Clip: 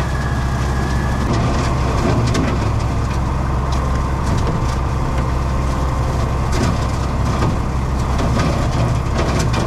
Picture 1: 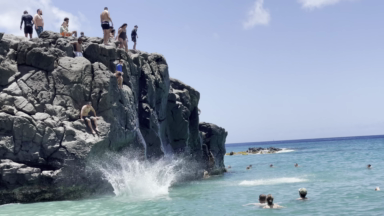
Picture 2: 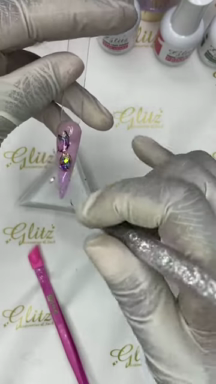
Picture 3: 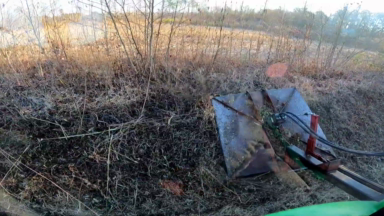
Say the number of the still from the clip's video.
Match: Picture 3